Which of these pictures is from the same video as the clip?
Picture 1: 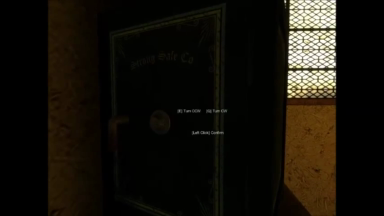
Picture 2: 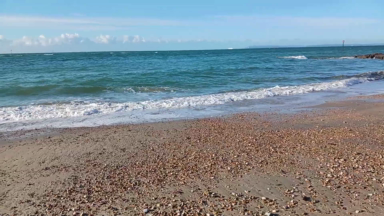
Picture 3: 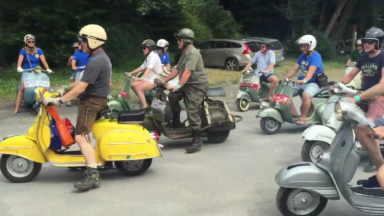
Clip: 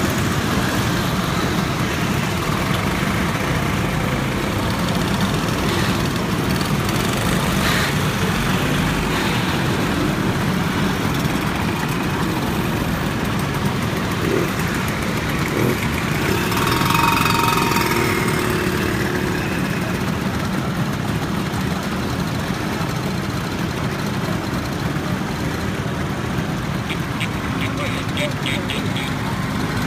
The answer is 3